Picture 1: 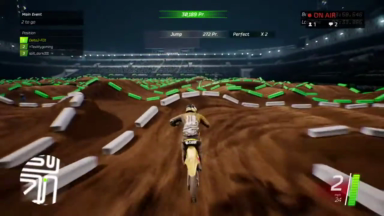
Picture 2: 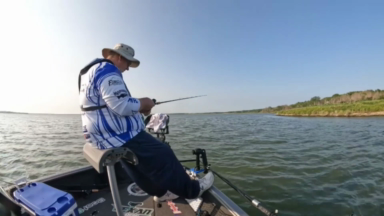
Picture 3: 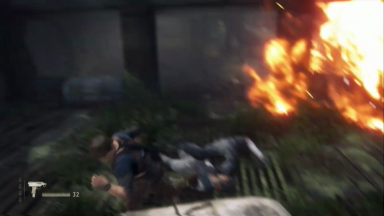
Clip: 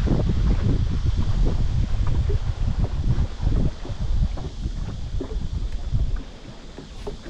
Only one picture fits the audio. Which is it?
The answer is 2